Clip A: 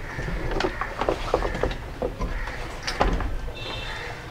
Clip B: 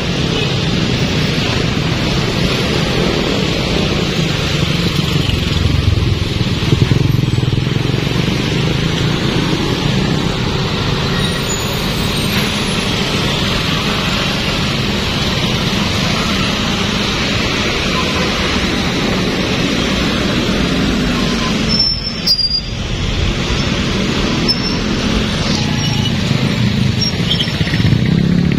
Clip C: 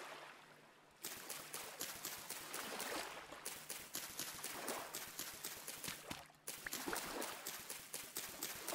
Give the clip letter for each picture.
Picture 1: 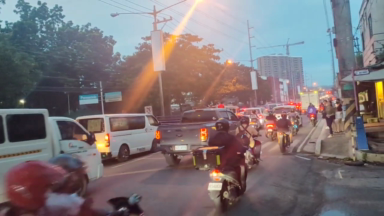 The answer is B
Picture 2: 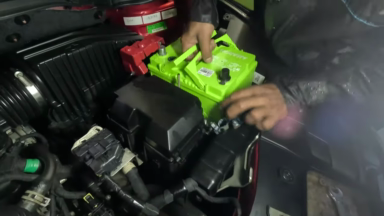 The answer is A